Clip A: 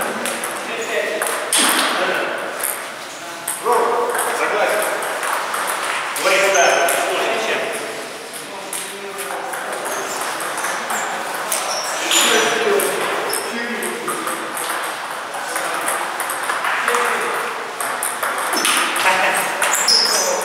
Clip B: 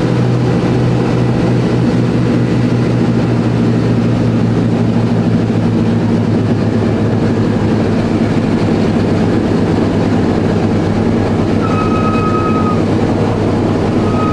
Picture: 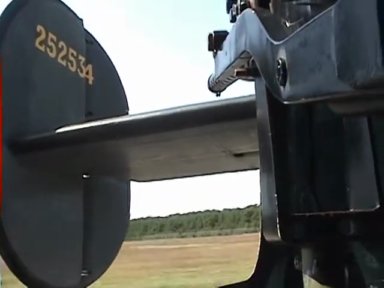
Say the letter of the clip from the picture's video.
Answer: B